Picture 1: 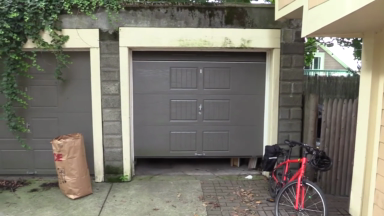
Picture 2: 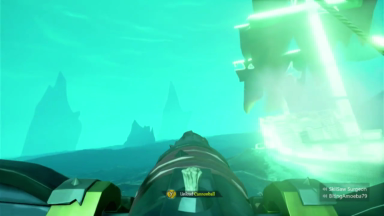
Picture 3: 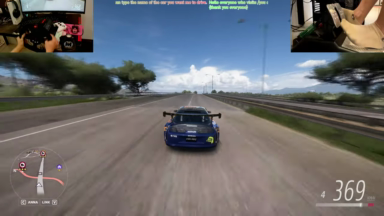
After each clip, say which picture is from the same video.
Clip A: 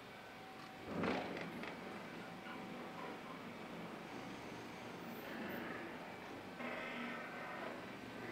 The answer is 1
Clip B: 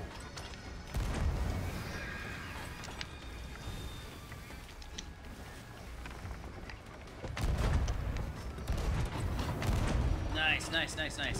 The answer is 2